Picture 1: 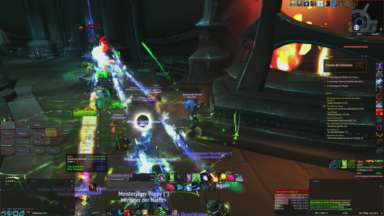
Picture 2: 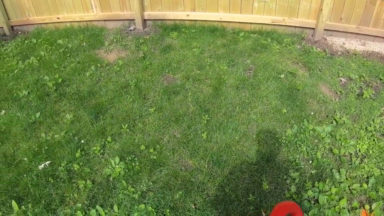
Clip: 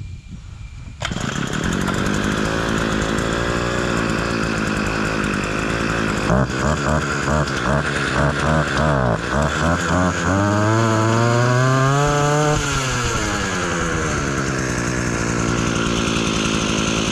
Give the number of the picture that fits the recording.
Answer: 2